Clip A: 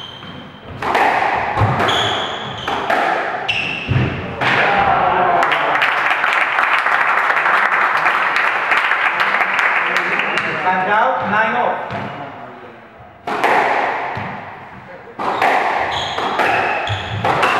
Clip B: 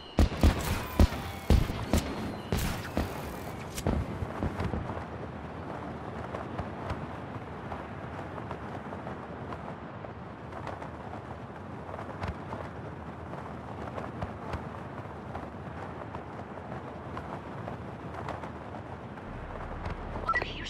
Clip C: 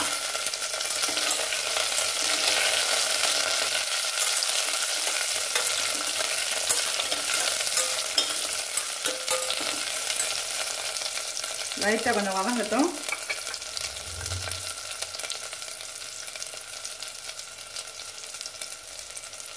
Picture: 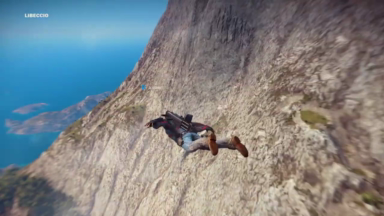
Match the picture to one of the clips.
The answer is B